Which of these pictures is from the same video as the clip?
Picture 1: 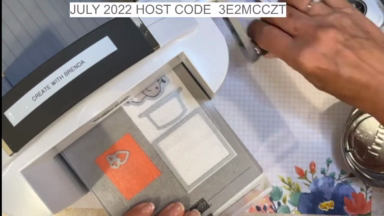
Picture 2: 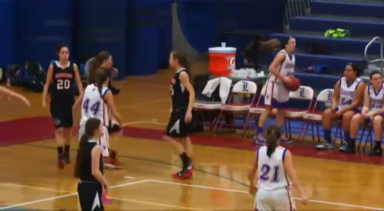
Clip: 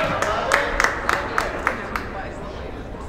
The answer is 2